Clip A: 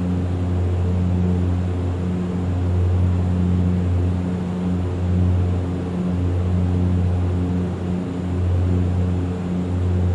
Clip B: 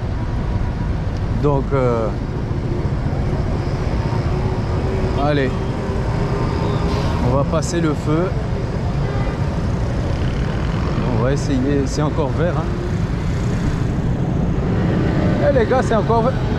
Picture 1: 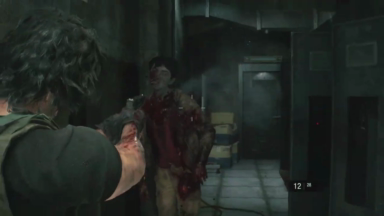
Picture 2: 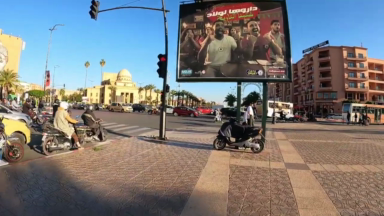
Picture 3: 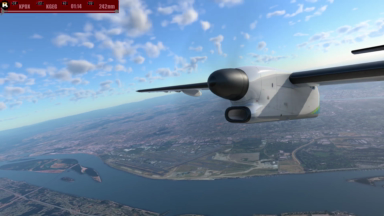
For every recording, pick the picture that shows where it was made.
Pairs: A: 3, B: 2